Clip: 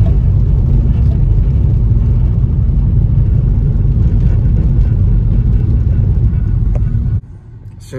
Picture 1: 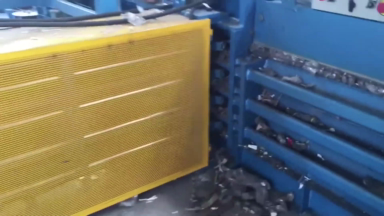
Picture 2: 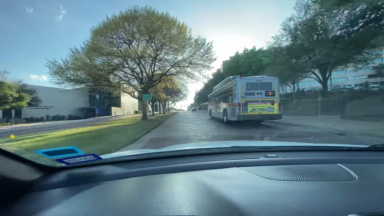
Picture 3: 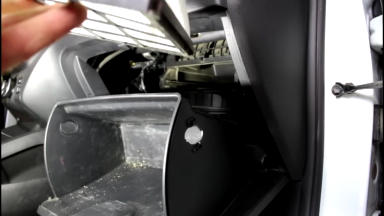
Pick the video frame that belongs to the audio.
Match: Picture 2